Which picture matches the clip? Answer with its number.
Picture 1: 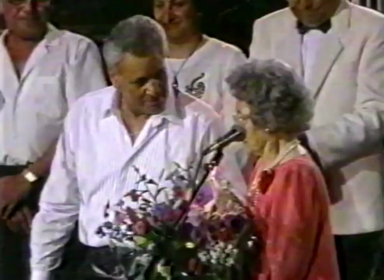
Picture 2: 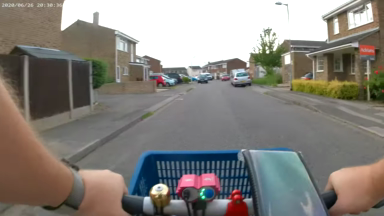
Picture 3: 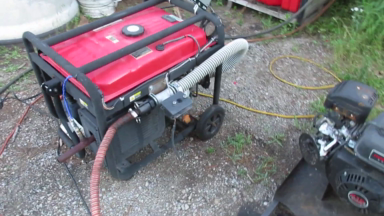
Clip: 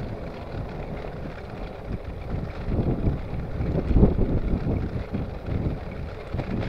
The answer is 2